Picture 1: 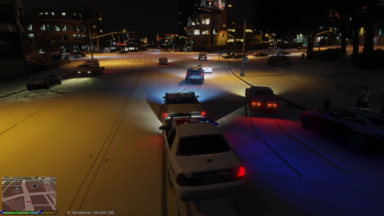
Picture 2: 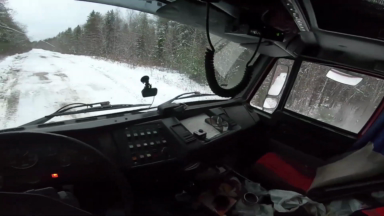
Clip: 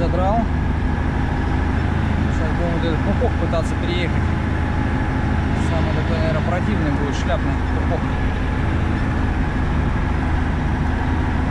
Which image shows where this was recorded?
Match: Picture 2